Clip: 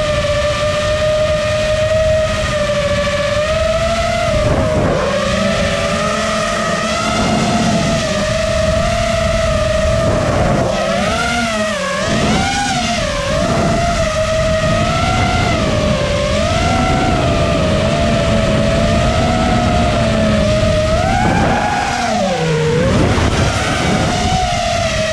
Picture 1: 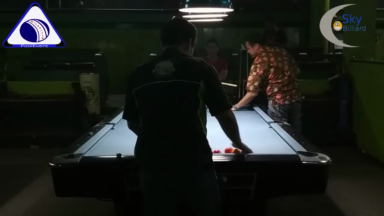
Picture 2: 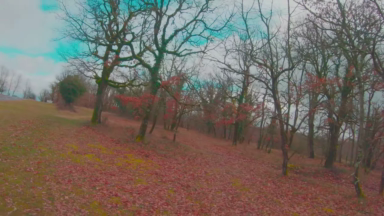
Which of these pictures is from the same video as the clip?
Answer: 2